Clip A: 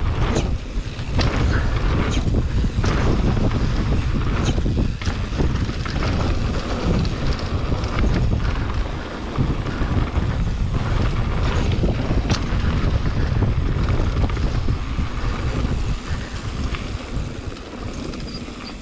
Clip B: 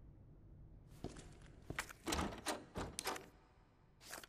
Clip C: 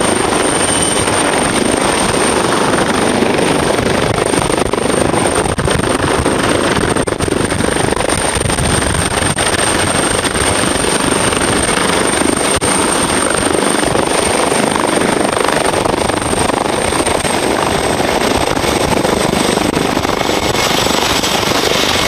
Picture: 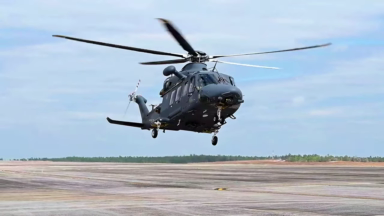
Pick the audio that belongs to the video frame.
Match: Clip C